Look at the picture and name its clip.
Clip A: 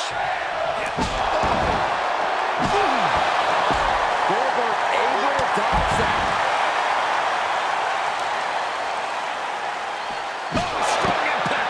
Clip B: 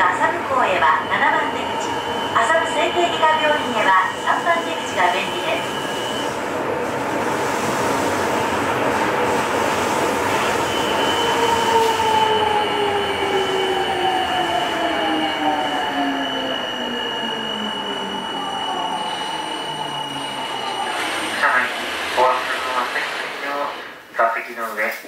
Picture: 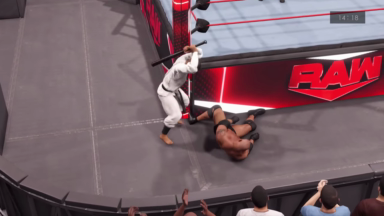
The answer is A